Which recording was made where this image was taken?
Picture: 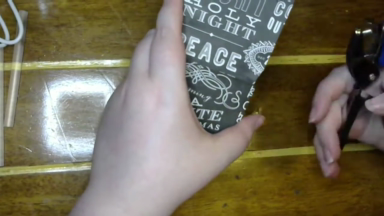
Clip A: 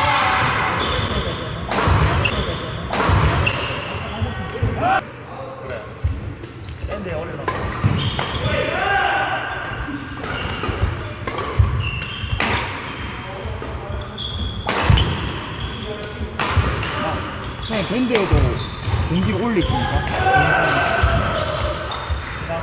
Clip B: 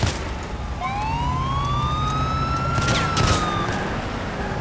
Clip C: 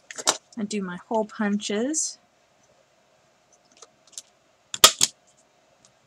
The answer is C